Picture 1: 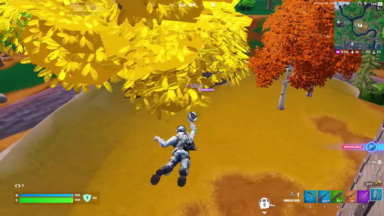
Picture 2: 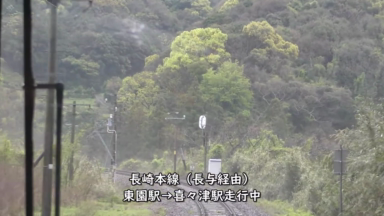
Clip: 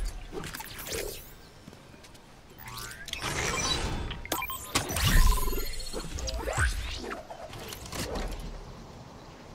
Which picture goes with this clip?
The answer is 1